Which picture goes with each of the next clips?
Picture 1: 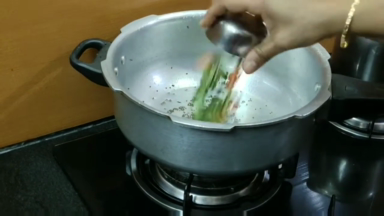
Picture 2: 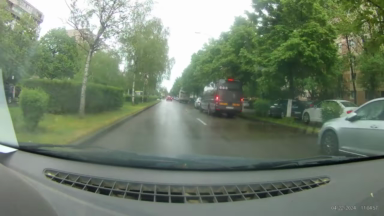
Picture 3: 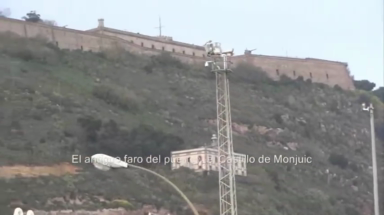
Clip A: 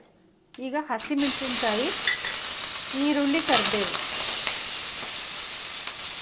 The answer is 1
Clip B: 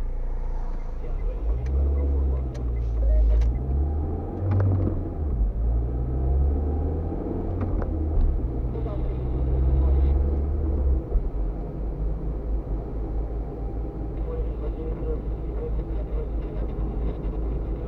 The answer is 2